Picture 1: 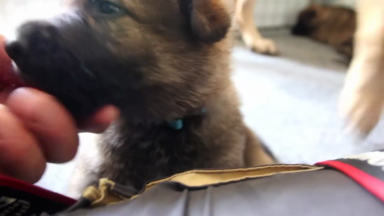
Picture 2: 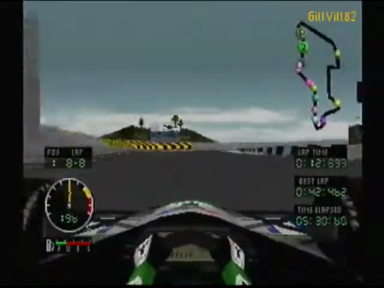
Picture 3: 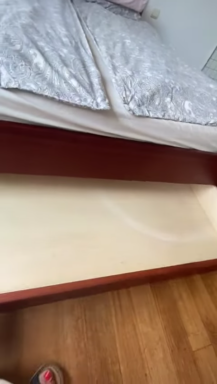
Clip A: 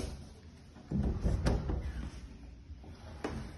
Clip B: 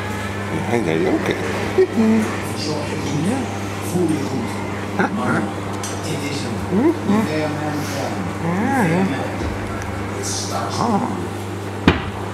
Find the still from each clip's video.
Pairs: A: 3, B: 1